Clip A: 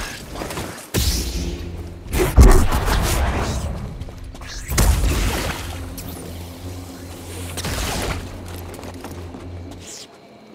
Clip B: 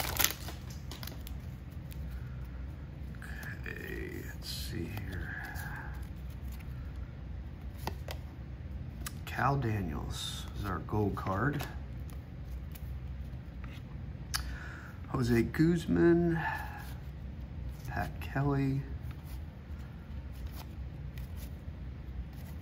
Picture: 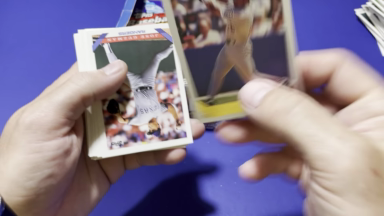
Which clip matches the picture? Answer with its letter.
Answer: B